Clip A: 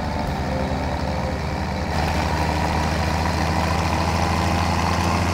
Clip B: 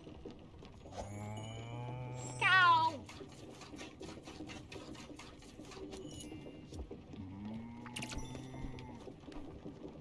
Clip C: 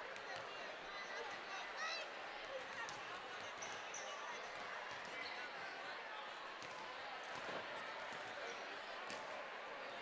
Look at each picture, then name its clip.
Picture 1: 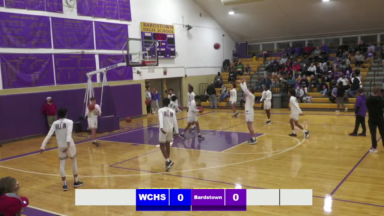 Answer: C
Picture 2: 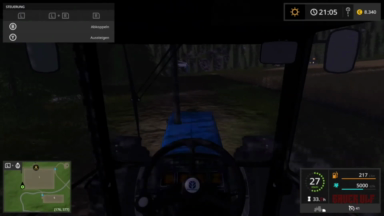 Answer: A